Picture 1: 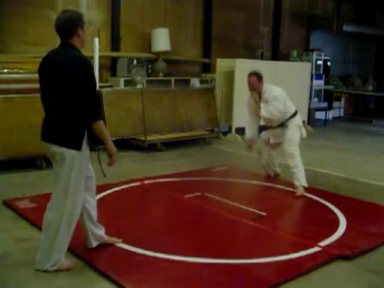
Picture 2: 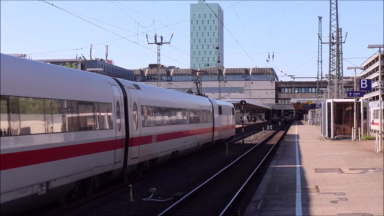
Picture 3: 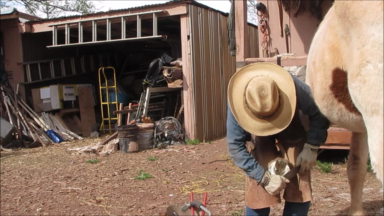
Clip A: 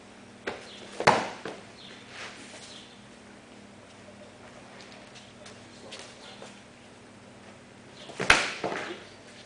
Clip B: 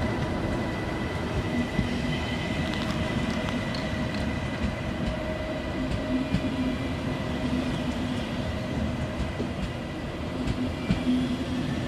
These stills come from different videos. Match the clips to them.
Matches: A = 1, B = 2